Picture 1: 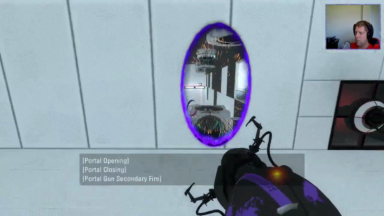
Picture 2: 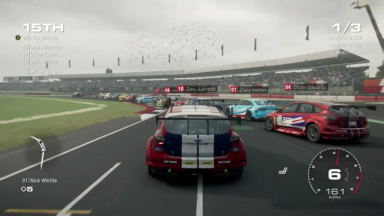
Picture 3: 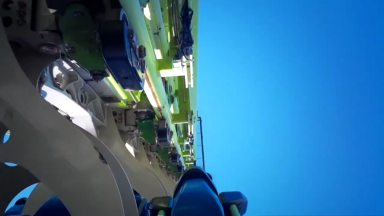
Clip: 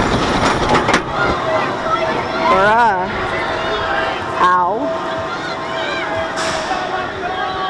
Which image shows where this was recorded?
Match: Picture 3